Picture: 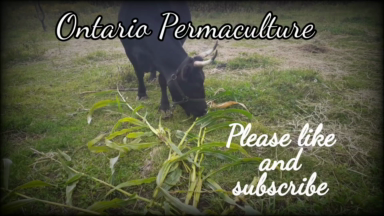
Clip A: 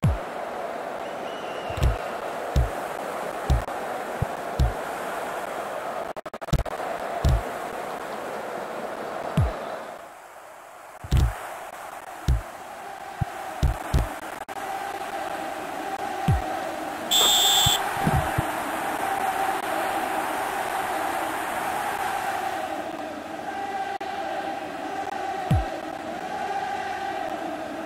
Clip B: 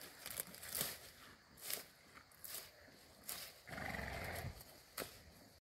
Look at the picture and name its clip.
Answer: B